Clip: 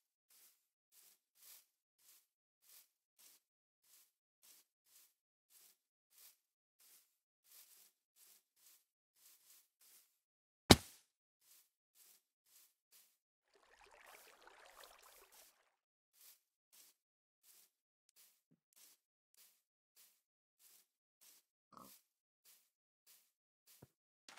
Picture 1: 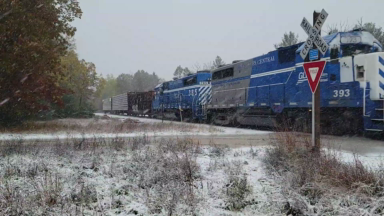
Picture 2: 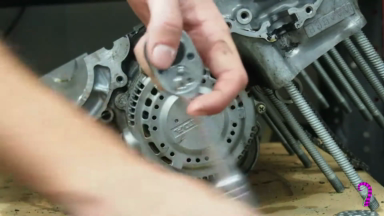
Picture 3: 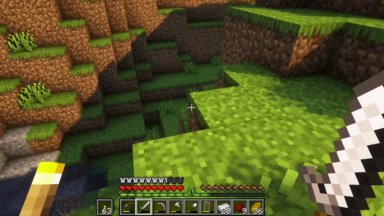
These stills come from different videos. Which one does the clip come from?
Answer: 3